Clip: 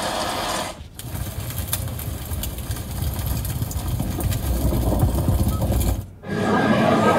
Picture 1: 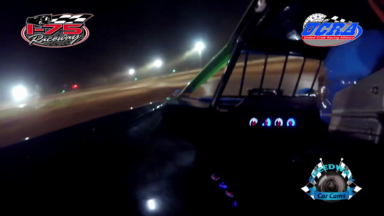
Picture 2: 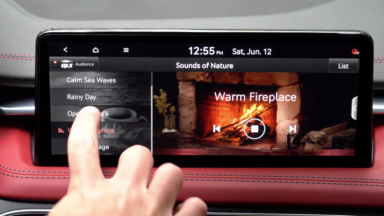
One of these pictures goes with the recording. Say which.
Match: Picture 2